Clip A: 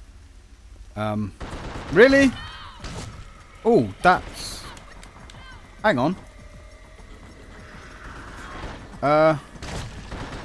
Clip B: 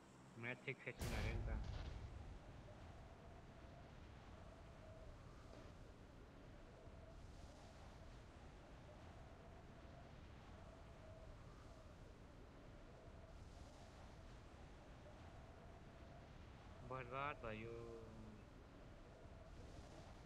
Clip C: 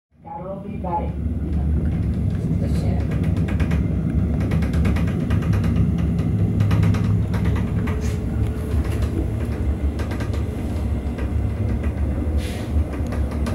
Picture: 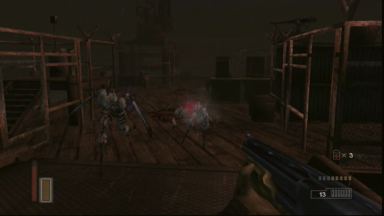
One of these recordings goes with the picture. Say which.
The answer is A